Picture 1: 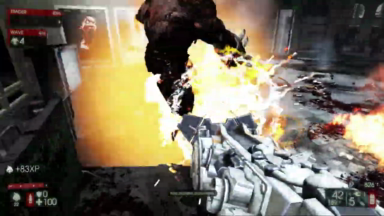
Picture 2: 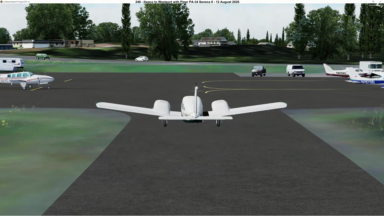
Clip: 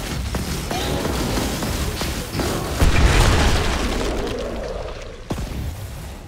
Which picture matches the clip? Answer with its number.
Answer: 1